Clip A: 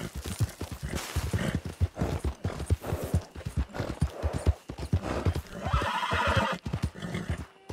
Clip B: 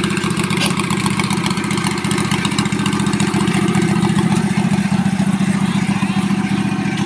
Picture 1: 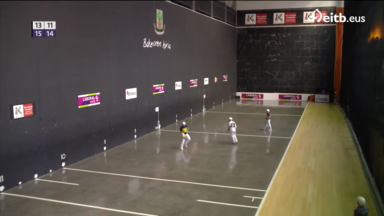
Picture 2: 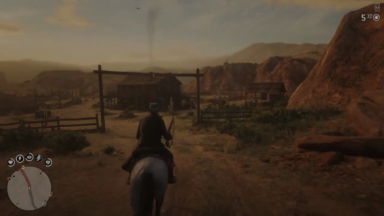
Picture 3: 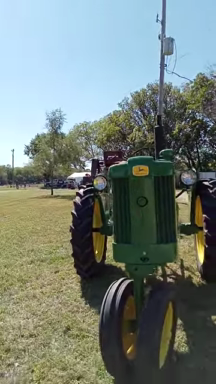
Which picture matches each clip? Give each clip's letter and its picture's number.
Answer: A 2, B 3